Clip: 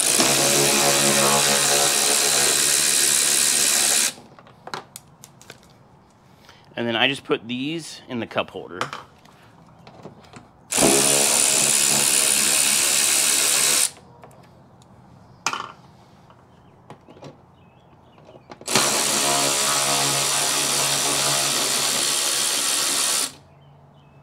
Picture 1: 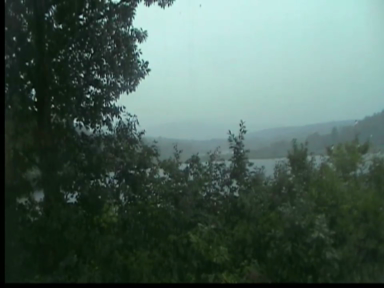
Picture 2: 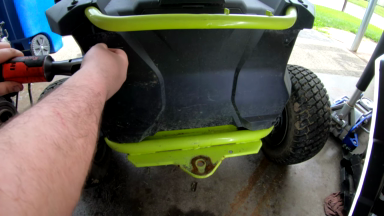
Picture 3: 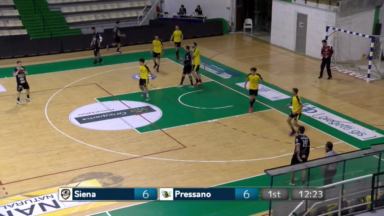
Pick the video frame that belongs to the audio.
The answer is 2